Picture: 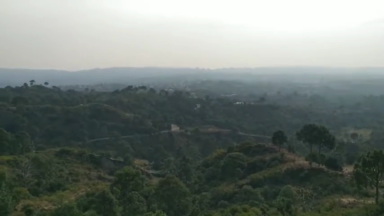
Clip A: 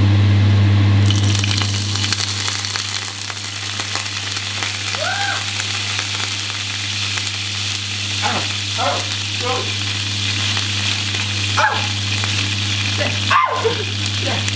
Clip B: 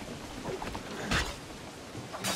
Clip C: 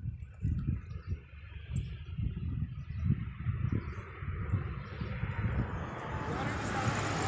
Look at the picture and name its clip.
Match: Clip C